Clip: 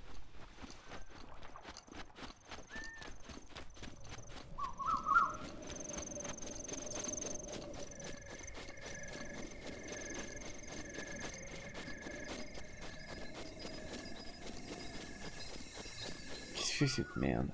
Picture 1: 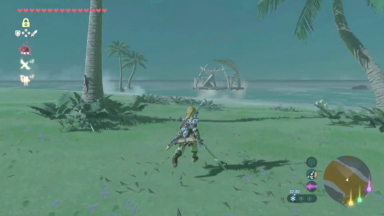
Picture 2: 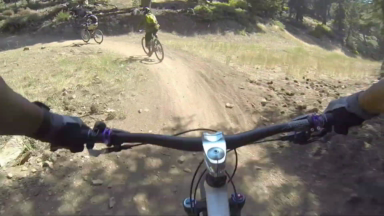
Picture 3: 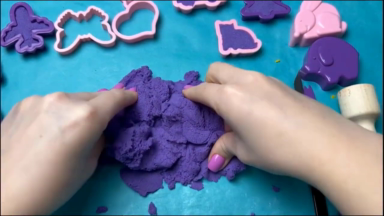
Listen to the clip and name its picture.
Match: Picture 1